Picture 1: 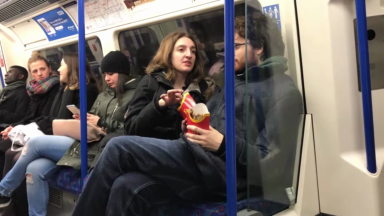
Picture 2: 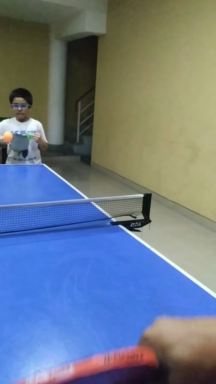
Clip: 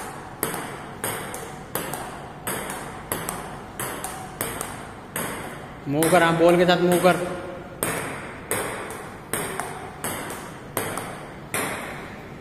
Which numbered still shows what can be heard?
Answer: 2